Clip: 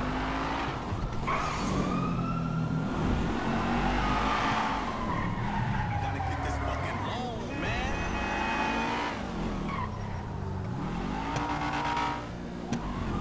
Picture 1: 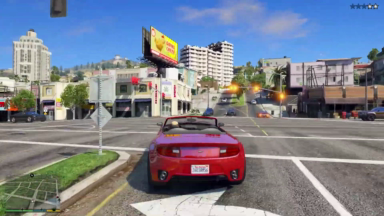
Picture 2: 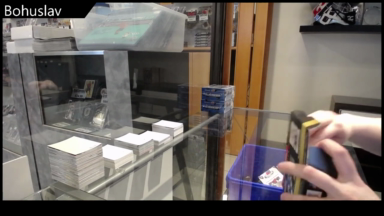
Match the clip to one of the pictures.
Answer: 1